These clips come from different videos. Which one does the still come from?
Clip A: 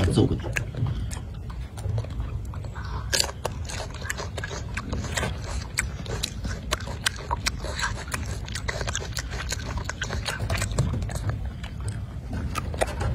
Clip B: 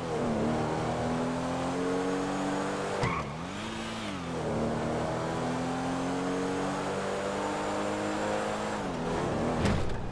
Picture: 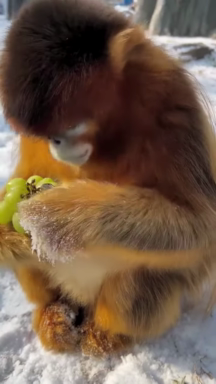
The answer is A